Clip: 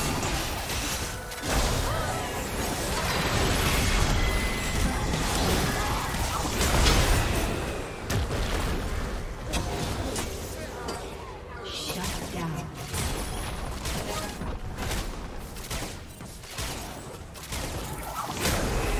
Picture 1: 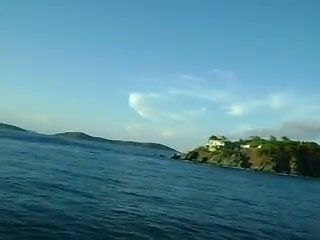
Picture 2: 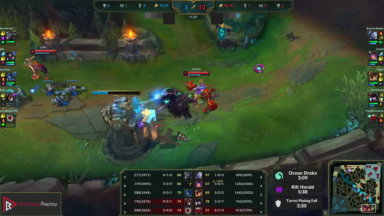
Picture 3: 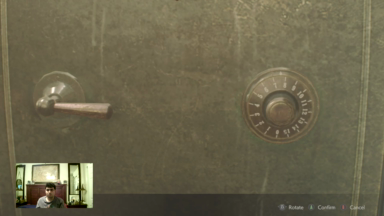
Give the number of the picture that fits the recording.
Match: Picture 2